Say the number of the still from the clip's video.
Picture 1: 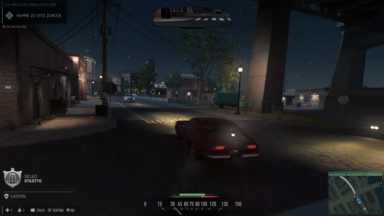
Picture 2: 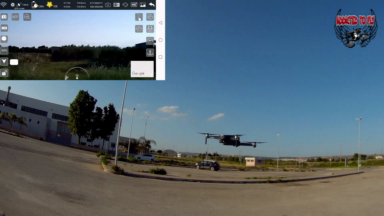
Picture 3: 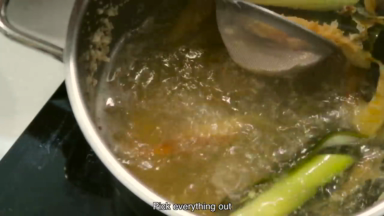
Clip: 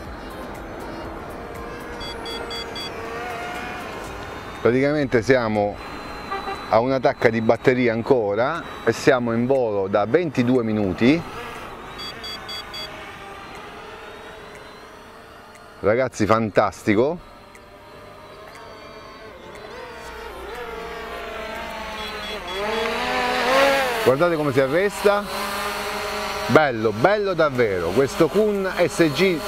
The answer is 2